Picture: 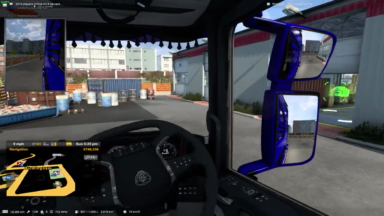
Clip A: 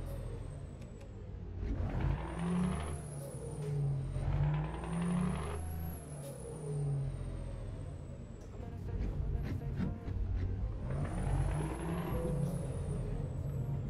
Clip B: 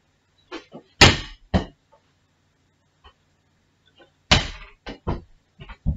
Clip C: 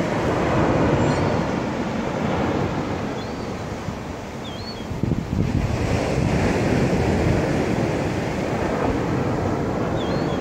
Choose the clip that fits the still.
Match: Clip A